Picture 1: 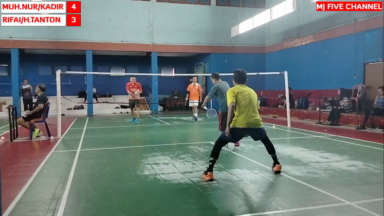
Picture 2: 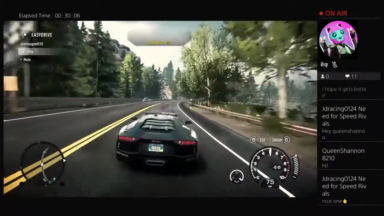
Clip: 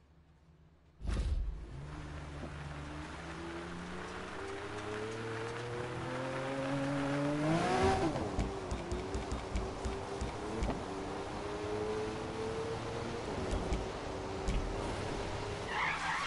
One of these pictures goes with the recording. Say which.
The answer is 2